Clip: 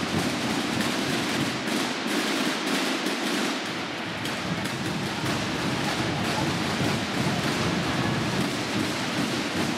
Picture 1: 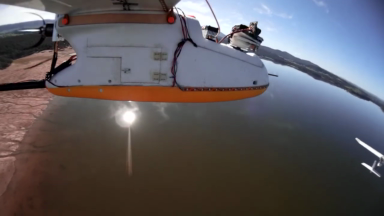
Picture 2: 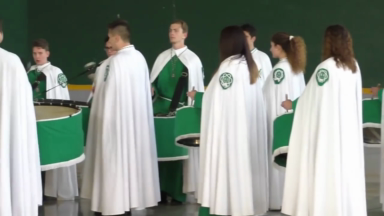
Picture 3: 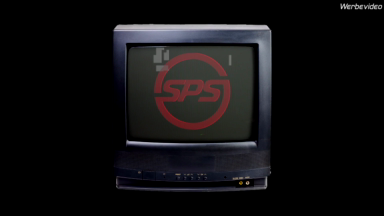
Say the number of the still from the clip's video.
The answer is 2